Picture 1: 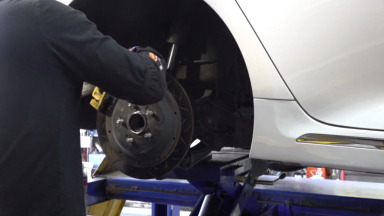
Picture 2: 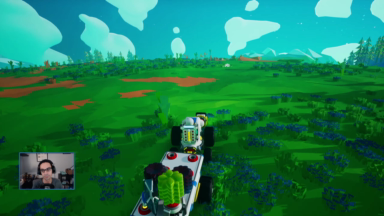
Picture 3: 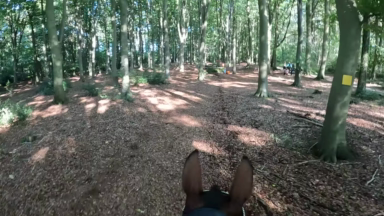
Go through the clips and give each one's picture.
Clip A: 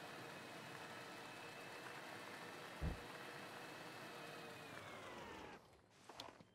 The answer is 2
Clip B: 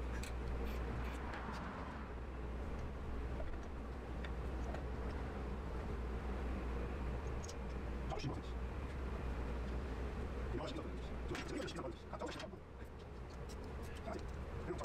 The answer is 1